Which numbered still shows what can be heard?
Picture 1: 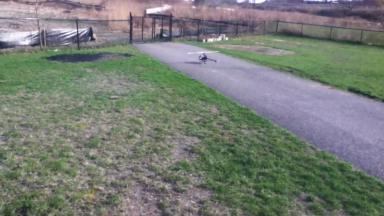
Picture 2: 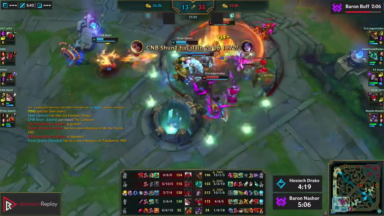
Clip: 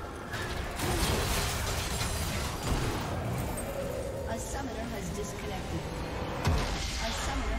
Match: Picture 2